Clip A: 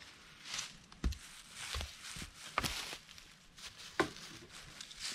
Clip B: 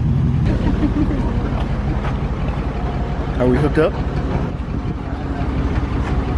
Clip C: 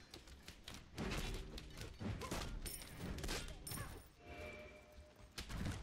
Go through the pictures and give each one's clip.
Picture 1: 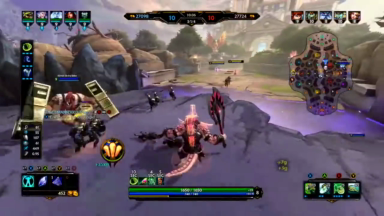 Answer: C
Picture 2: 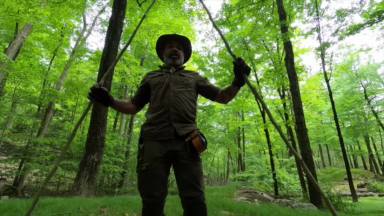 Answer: A